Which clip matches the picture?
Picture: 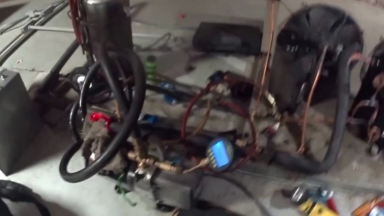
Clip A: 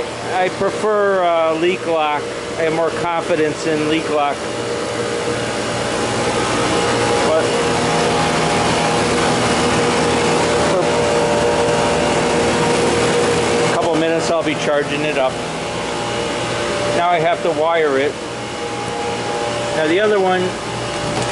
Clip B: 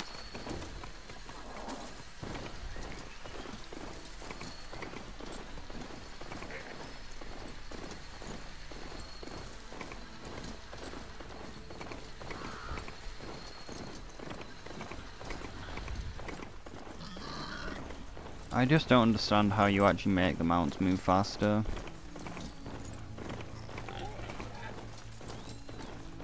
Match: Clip A